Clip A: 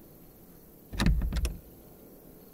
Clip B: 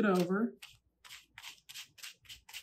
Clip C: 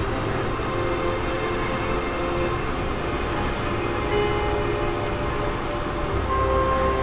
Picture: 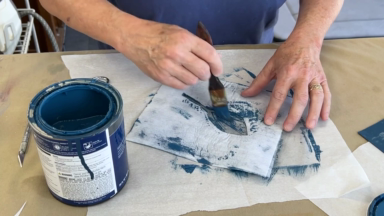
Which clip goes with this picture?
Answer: B